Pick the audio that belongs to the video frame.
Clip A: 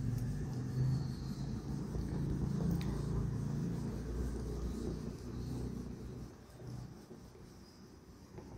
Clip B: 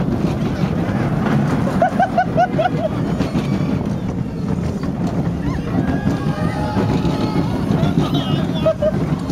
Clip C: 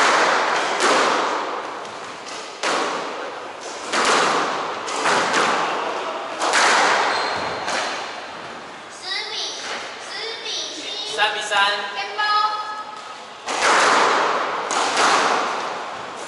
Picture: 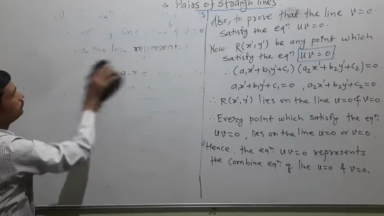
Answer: A